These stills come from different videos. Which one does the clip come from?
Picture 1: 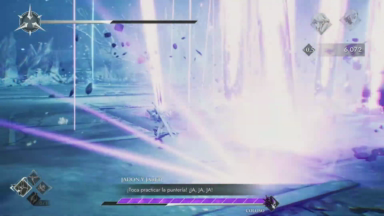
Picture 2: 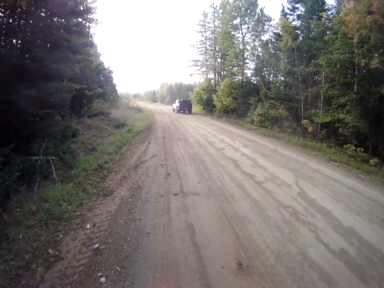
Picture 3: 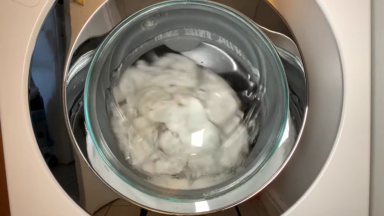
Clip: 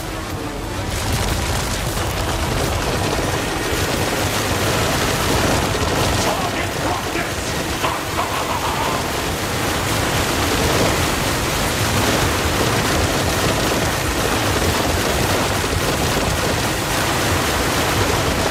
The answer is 1